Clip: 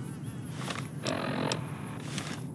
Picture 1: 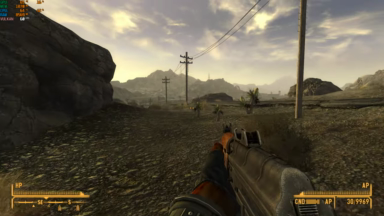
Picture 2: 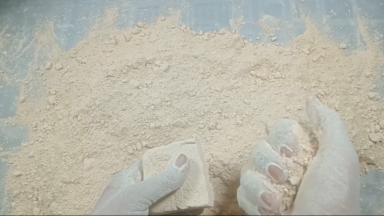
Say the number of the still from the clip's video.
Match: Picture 1